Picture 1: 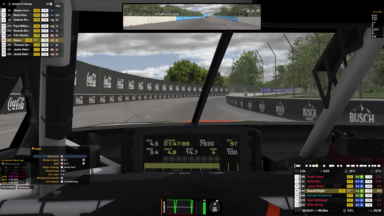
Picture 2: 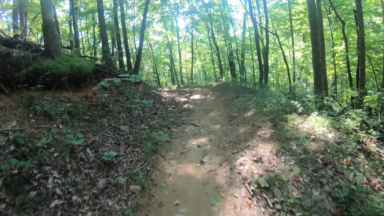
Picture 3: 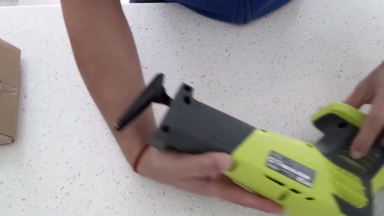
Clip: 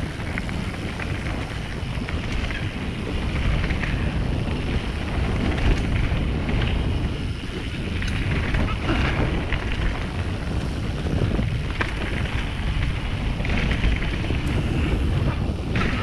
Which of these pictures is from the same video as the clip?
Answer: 2